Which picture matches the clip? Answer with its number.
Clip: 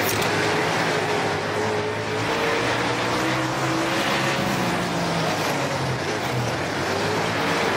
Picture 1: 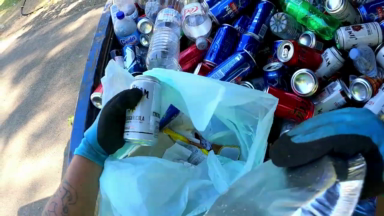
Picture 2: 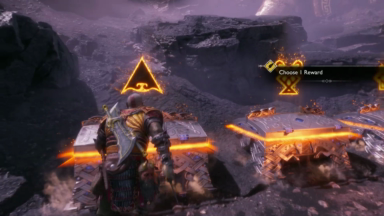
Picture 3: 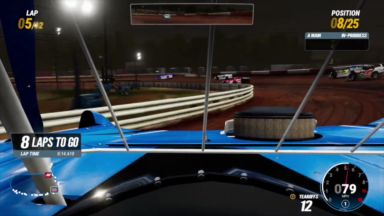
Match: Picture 3